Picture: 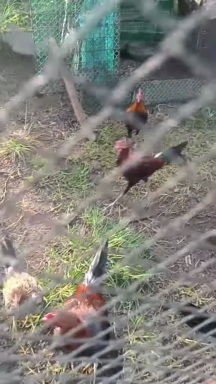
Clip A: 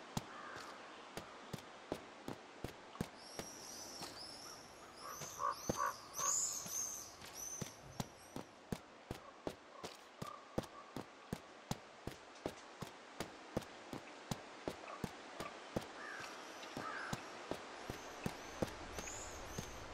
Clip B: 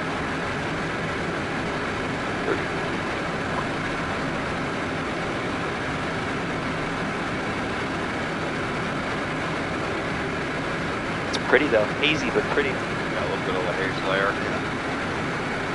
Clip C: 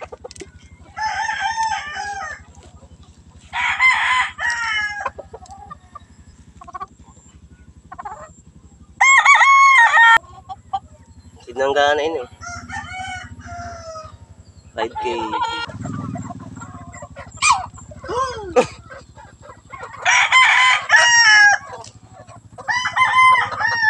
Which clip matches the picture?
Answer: C